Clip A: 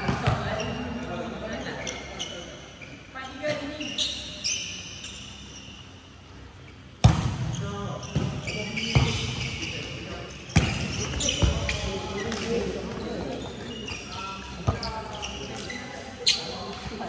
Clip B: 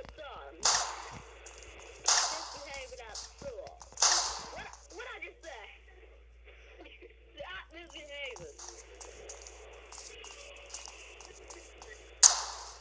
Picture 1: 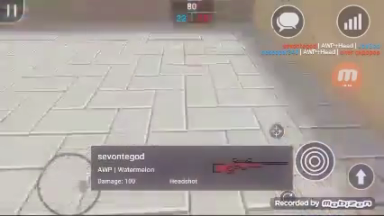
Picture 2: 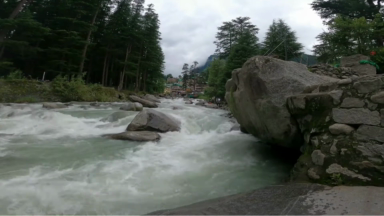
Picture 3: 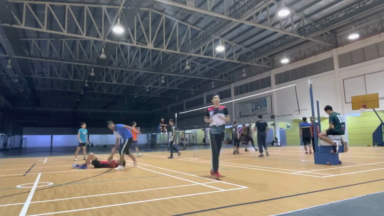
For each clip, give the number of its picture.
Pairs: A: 3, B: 1